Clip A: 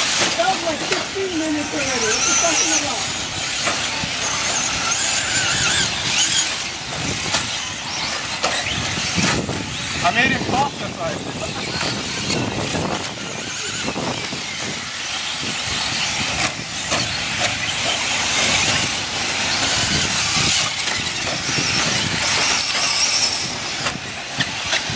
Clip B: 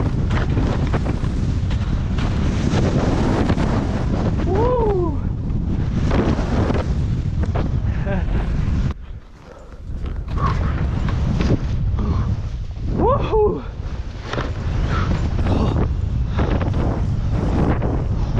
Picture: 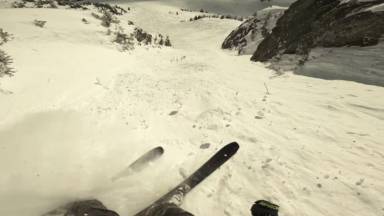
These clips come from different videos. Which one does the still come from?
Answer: B